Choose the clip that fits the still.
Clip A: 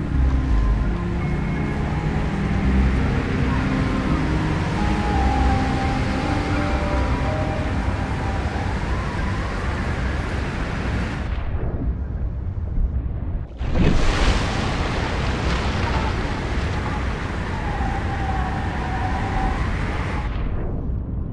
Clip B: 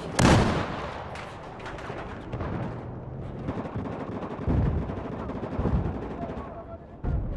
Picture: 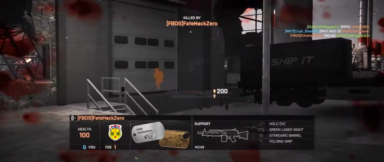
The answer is B